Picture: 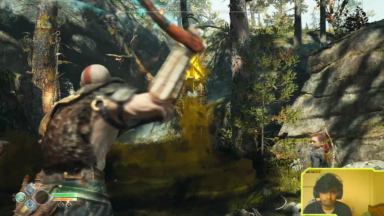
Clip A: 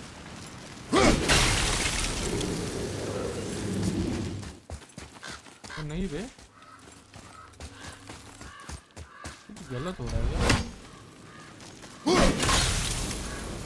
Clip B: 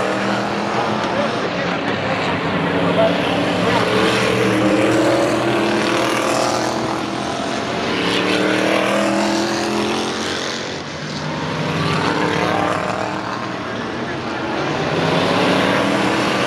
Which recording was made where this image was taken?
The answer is A